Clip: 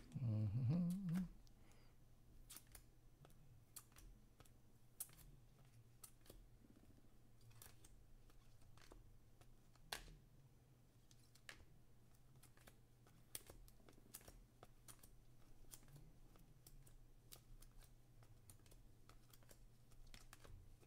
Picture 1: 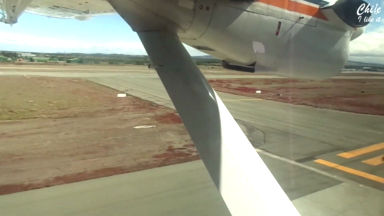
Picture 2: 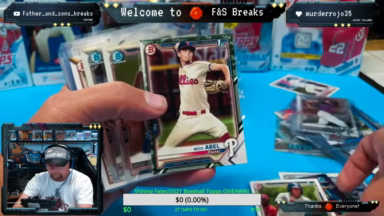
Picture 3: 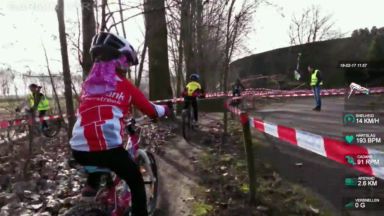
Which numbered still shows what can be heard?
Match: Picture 2